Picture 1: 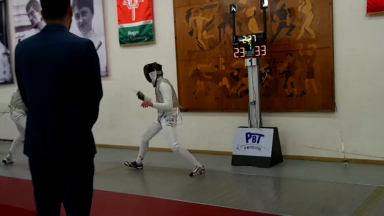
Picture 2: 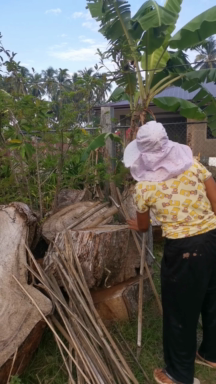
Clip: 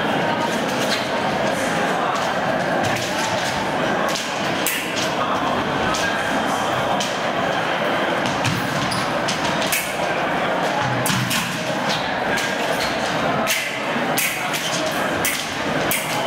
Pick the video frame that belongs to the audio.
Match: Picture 1